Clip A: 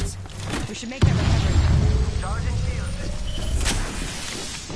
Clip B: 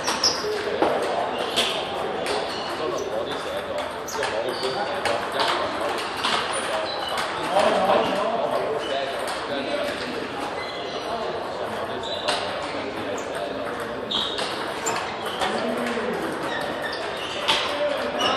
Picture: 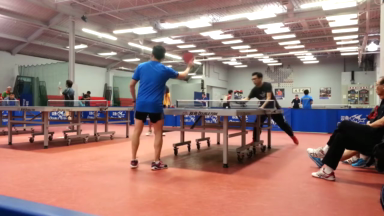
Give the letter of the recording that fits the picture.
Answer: B